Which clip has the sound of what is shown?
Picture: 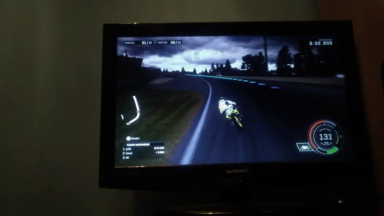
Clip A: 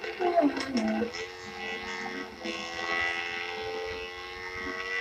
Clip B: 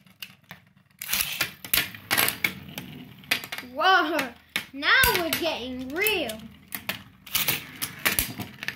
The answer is A